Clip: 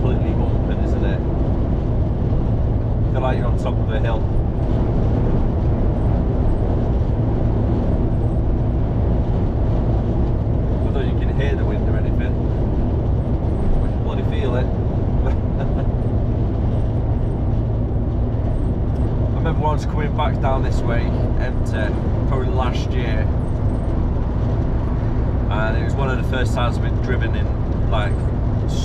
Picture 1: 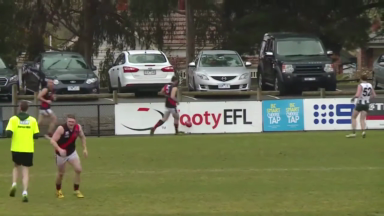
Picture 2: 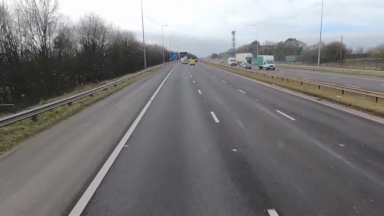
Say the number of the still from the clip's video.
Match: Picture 2